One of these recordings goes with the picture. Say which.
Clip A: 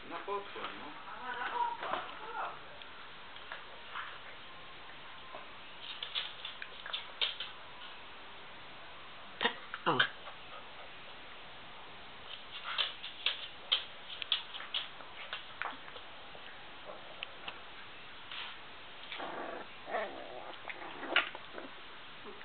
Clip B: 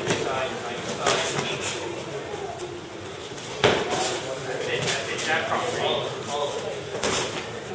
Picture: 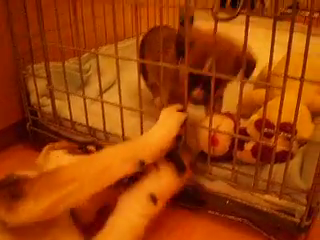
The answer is A